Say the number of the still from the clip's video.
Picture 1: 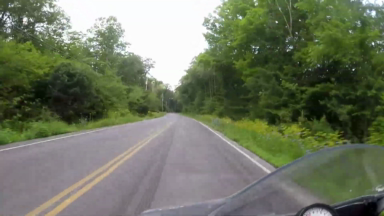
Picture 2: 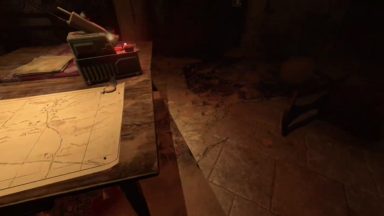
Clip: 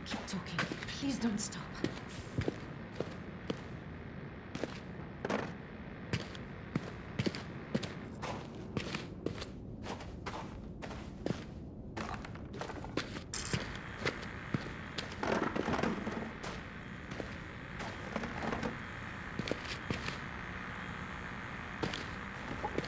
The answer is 2